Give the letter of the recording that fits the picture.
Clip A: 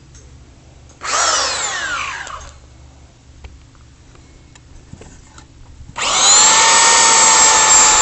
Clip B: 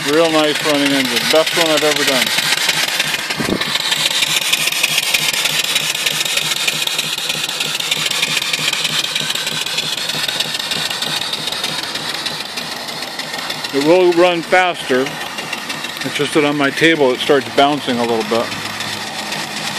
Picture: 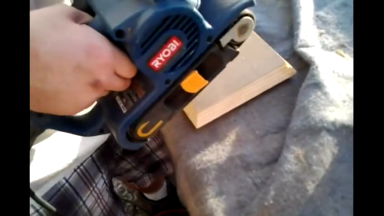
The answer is A